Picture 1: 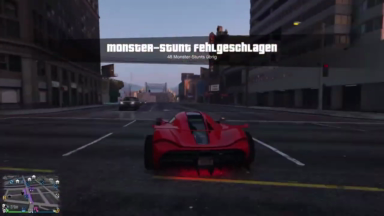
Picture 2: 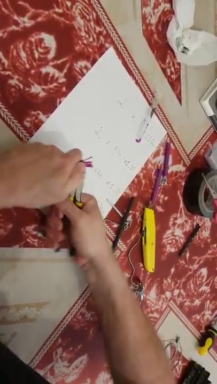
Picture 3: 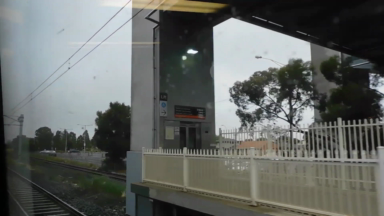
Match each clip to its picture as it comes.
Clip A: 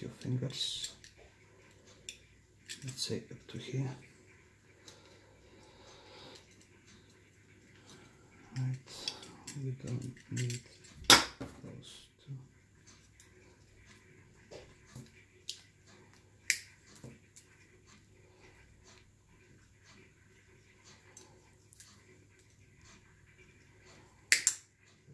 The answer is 2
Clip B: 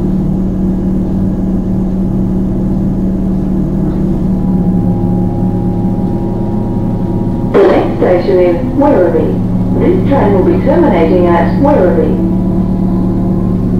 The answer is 3